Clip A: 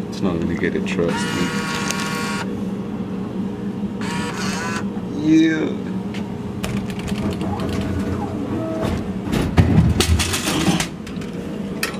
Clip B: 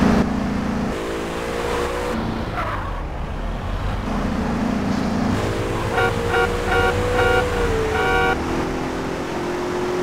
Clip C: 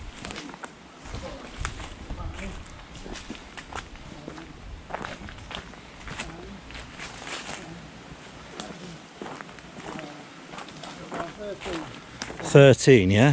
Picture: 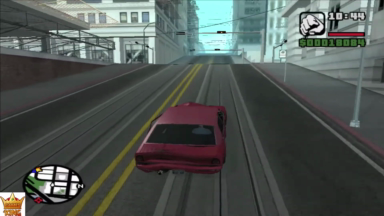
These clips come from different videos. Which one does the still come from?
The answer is B